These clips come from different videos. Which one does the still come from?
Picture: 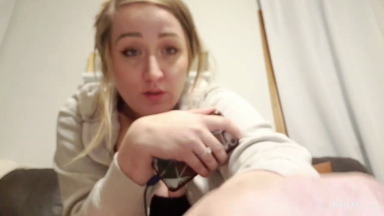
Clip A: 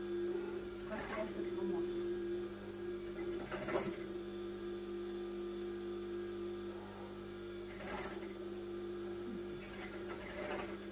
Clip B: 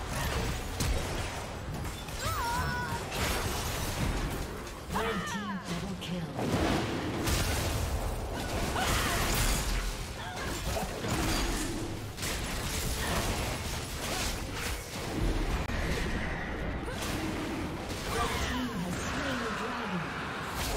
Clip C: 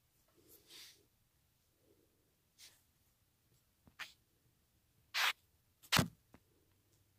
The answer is C